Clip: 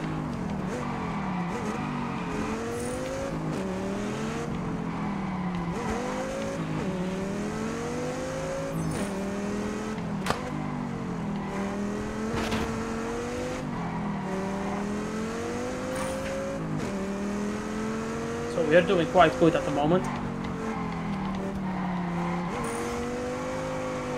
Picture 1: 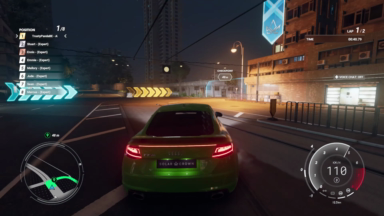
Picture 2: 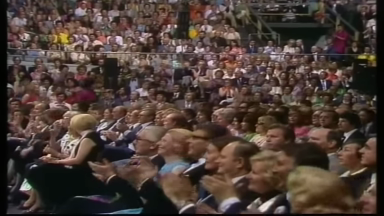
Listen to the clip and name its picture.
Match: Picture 1